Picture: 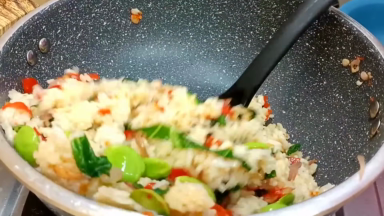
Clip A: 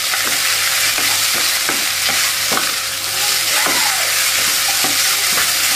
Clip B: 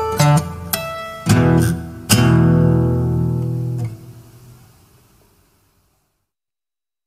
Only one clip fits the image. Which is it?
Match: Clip A